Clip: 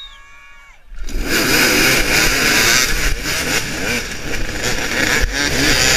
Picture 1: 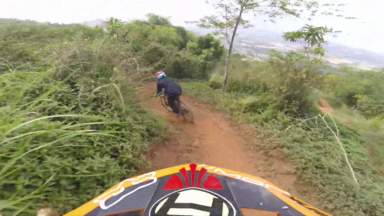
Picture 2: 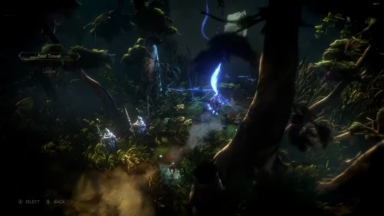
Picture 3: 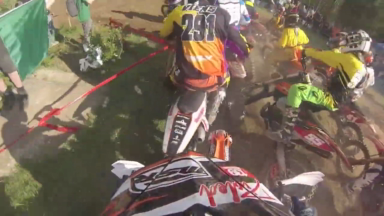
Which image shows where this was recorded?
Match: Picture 3